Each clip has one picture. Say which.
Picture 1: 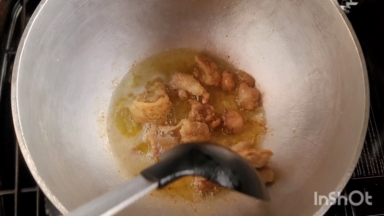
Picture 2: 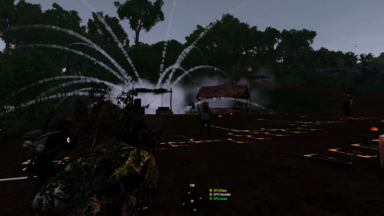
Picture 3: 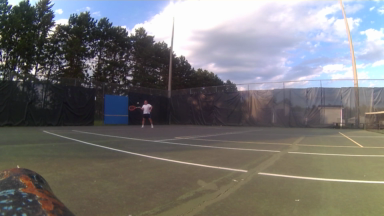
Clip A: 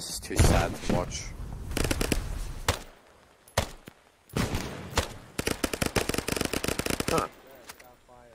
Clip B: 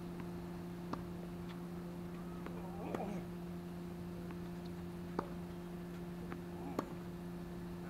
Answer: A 2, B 3